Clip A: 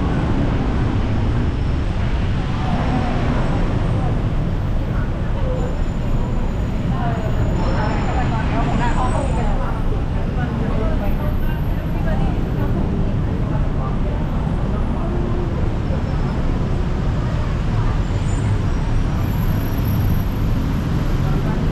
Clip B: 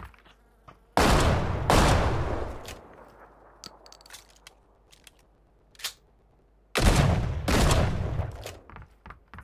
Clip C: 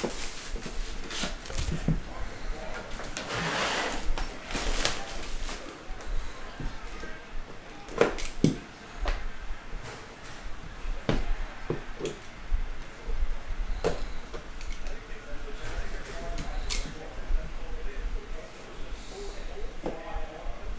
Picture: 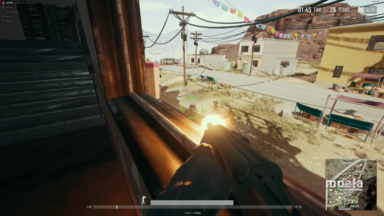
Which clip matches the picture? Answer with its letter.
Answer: B